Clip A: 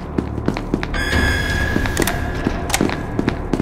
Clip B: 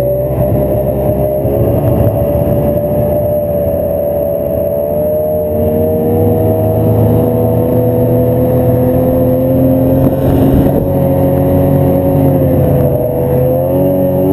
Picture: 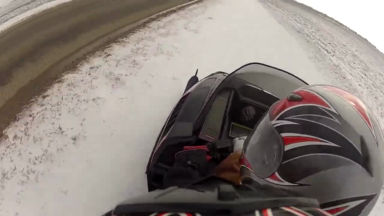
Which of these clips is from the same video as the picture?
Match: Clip B